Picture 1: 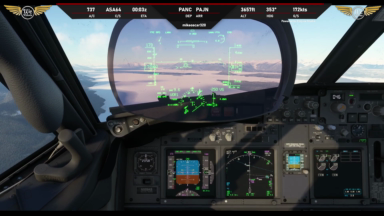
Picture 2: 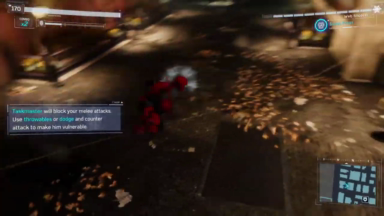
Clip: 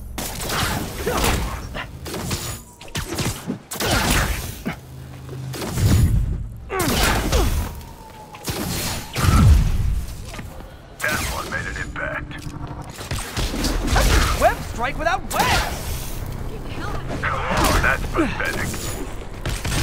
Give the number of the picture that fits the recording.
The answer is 2